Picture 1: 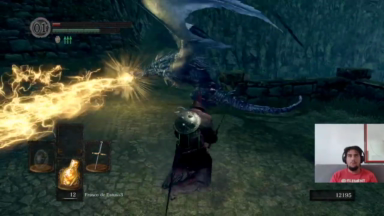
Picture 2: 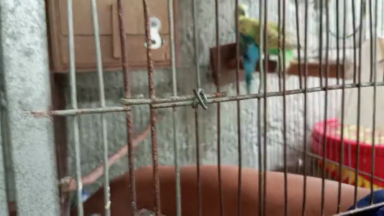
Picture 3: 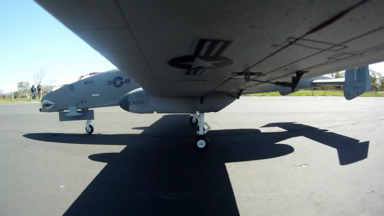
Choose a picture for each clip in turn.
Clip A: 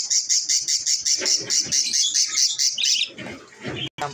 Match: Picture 2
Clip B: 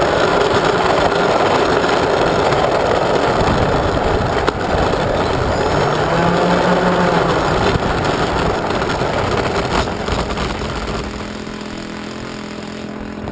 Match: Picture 3